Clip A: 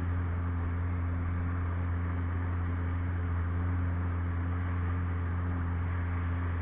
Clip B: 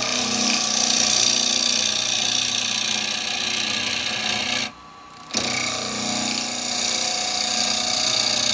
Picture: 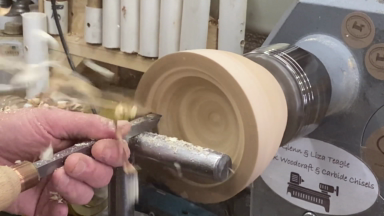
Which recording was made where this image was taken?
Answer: B